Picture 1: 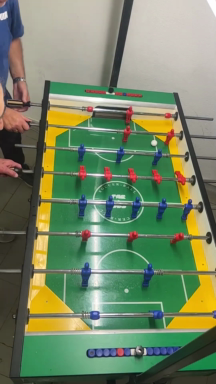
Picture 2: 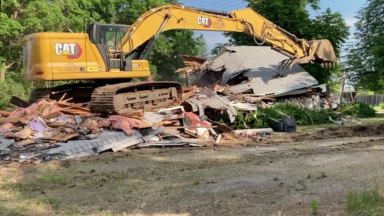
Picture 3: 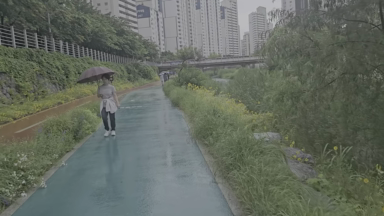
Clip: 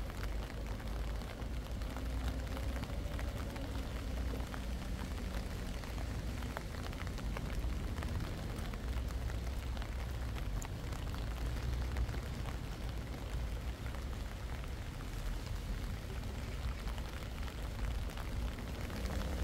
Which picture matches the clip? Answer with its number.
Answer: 3